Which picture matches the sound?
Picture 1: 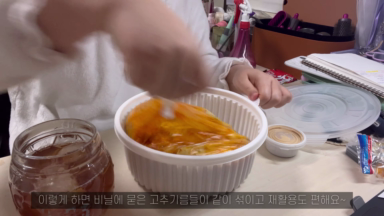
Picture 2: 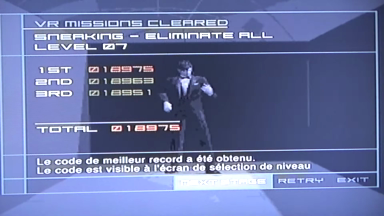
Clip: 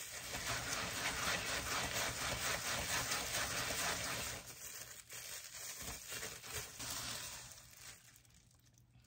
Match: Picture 1